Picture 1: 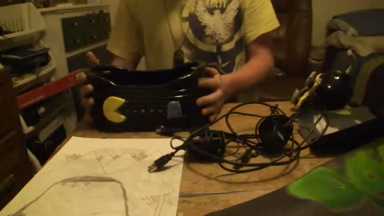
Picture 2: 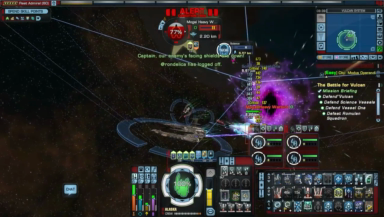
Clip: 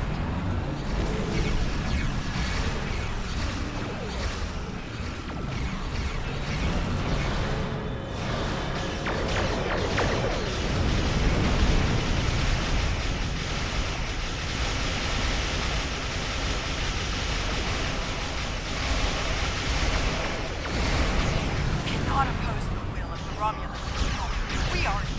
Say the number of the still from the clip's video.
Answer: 2